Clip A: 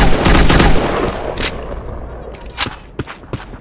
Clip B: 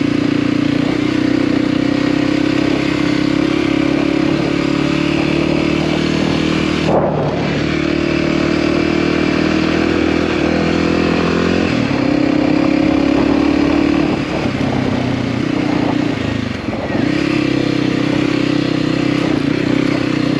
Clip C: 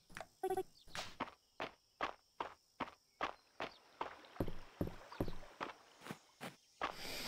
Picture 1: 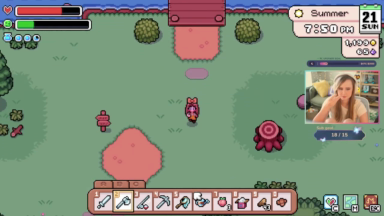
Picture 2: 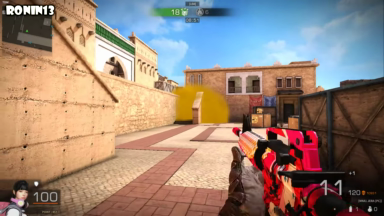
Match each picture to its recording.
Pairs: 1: C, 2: A